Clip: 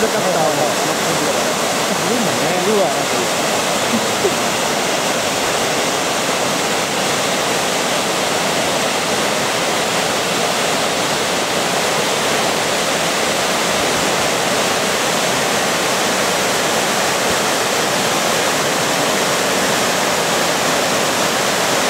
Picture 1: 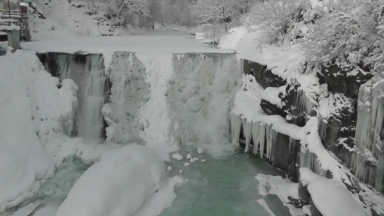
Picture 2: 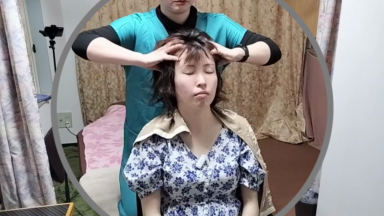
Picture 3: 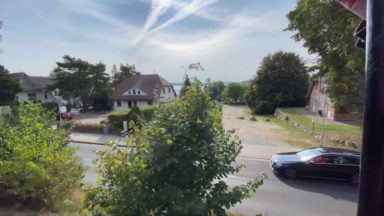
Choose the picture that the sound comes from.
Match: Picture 1